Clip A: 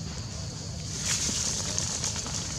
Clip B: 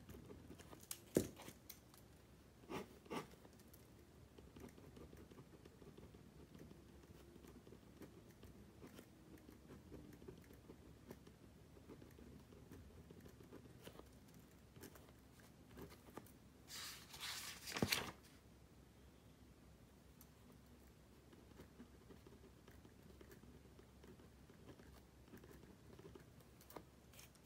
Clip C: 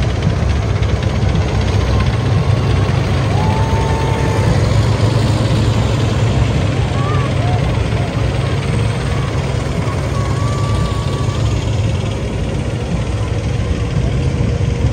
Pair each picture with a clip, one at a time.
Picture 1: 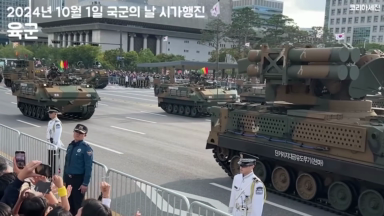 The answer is C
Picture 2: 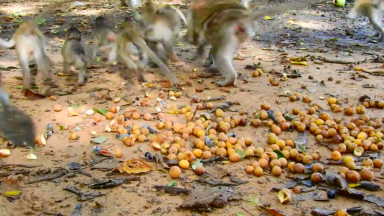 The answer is A